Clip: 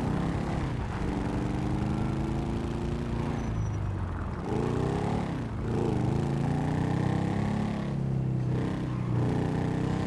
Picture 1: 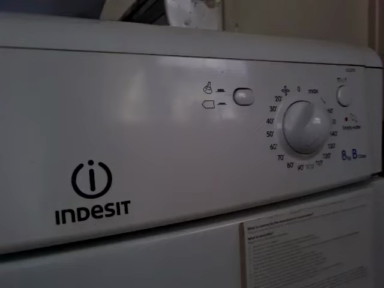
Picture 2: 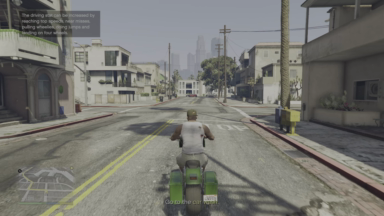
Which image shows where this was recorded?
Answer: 2